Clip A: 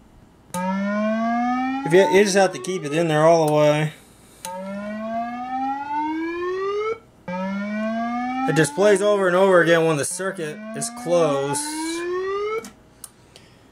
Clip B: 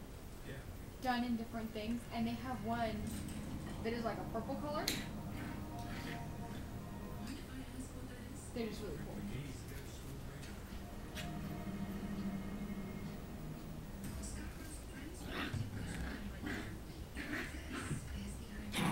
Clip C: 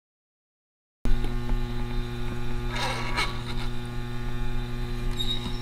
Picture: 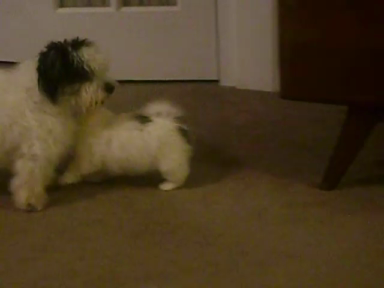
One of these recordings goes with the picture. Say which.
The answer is B